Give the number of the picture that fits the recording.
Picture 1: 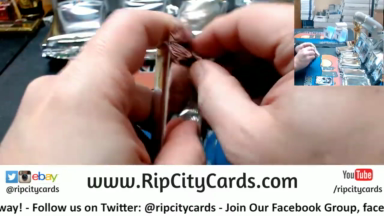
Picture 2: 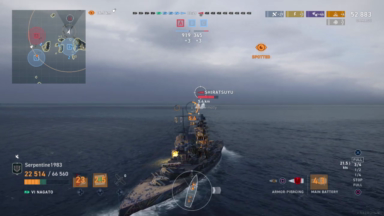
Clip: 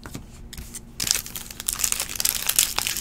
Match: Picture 1